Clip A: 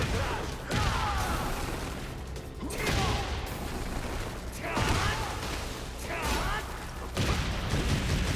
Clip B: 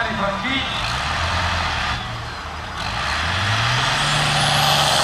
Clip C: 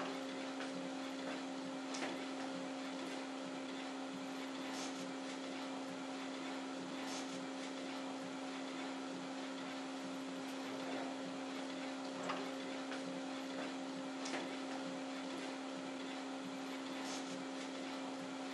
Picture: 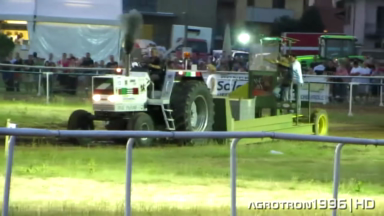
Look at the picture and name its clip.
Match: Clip B